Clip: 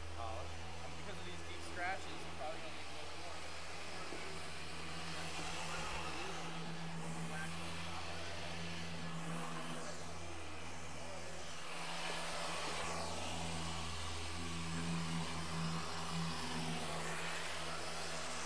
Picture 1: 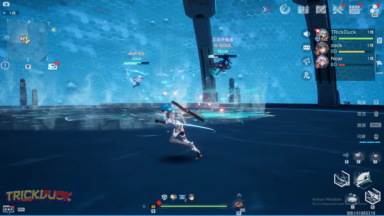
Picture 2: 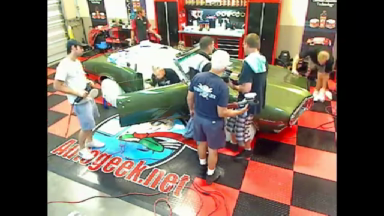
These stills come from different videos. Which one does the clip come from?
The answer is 2